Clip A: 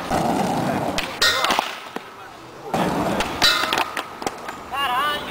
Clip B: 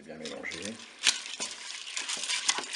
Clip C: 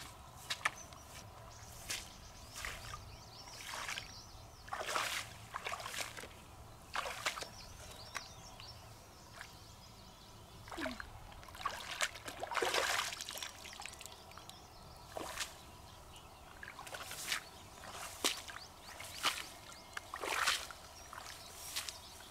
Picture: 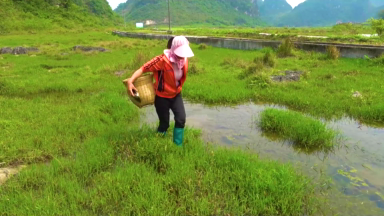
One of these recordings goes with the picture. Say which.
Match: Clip C